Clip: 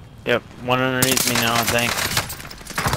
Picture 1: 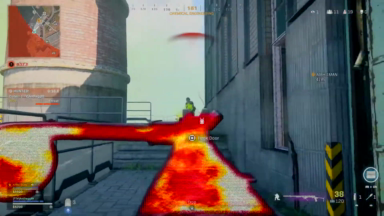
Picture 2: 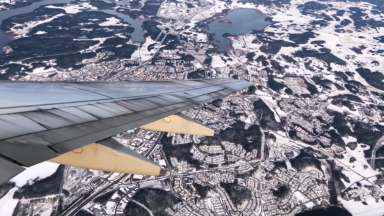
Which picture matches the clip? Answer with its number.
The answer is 1